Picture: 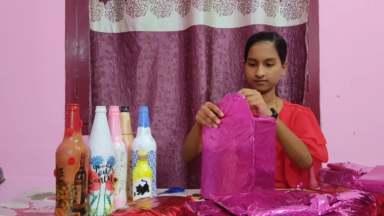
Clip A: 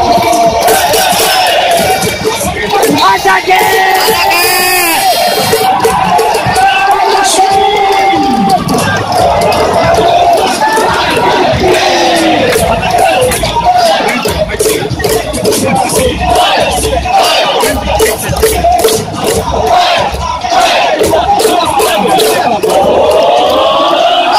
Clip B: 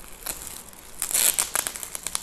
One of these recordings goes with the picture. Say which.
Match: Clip B